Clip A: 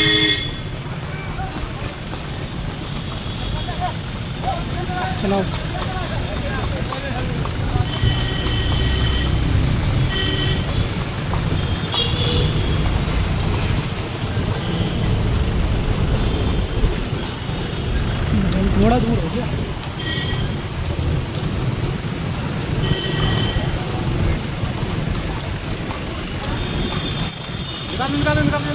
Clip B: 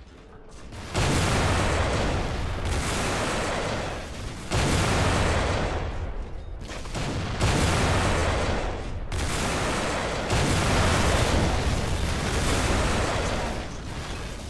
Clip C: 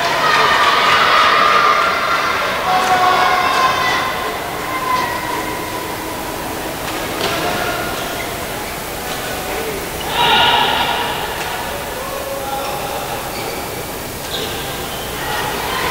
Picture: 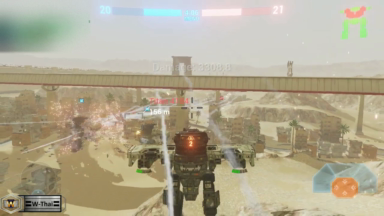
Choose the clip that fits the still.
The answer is B